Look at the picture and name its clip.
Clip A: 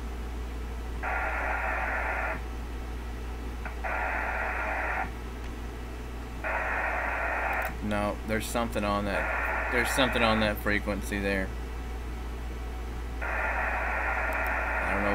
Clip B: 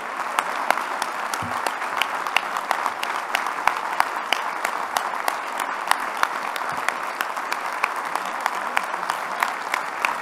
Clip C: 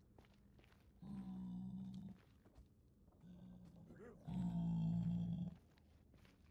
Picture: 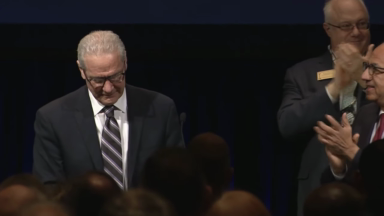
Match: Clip B